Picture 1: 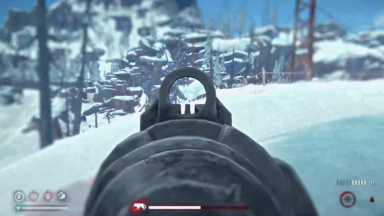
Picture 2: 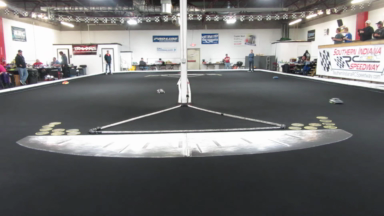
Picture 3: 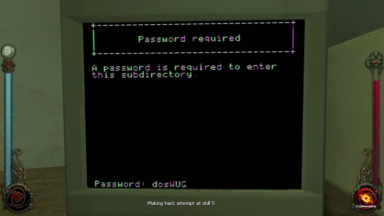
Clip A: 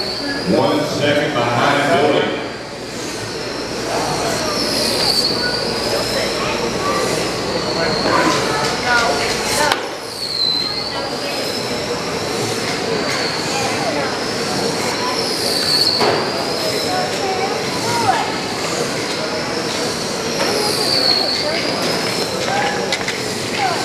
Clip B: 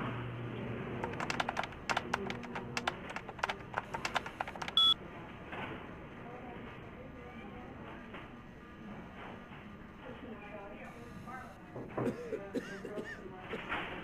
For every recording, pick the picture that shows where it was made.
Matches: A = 2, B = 3